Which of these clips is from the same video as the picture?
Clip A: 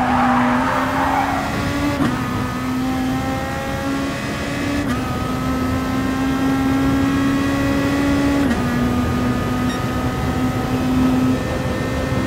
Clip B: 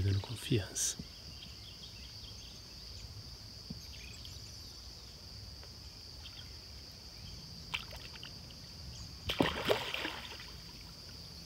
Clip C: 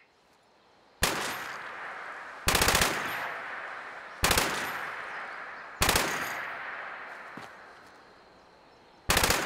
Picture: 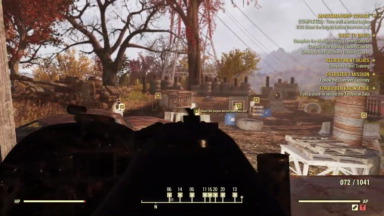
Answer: C